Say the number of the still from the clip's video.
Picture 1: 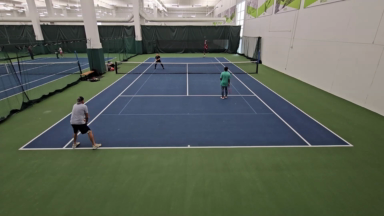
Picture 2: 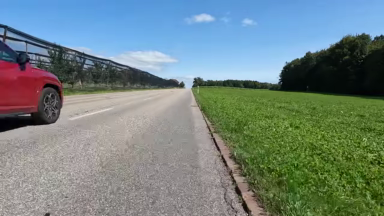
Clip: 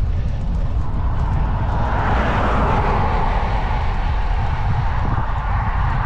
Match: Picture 2